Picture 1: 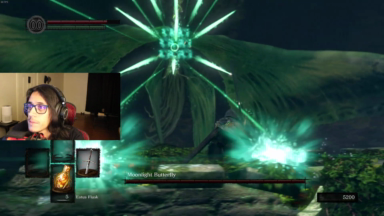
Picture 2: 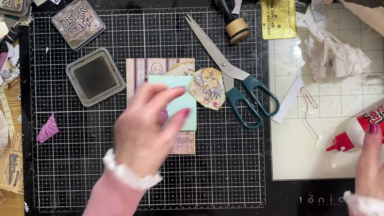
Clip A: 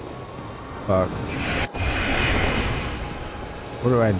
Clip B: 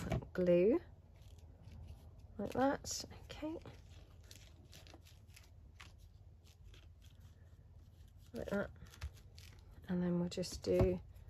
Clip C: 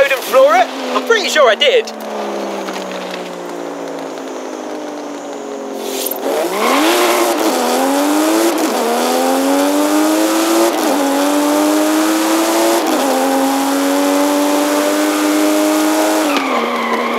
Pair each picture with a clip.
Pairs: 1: A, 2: B